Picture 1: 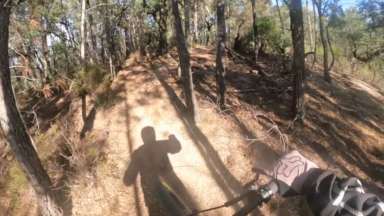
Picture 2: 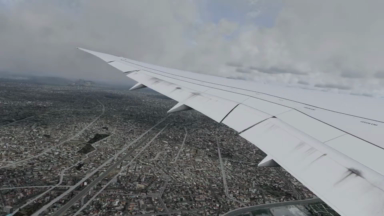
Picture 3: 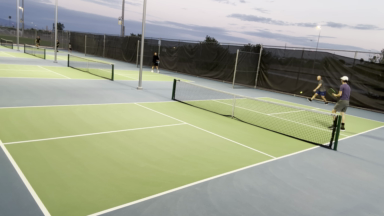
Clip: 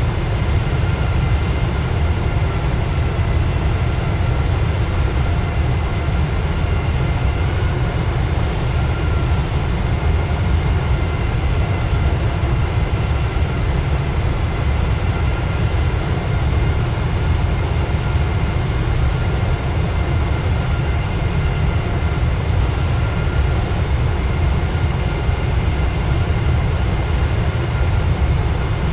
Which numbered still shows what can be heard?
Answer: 2